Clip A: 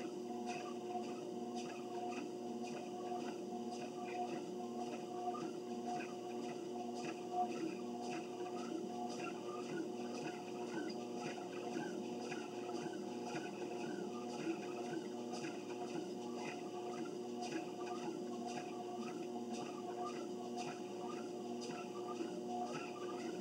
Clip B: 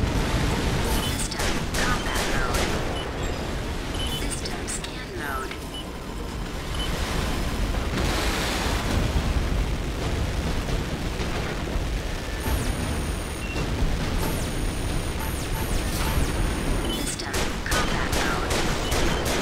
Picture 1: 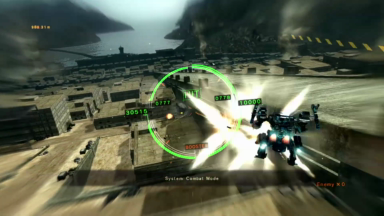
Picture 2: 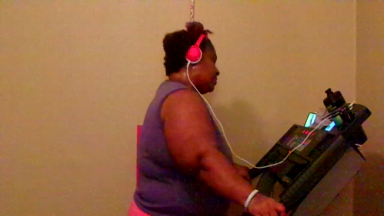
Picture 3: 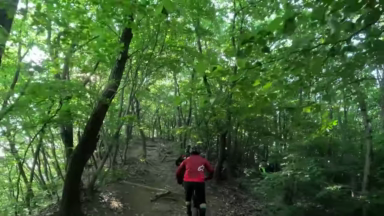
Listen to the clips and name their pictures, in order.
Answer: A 2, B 1